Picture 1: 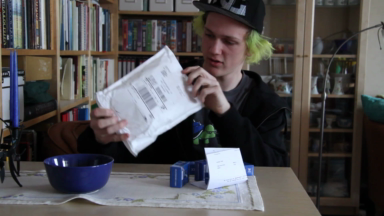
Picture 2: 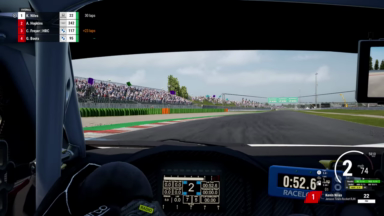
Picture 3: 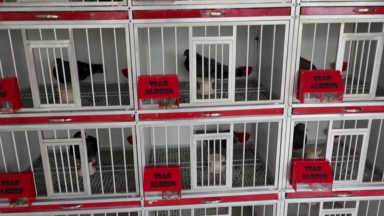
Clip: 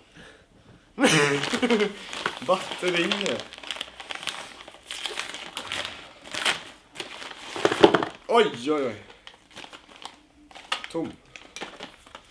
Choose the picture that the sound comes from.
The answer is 1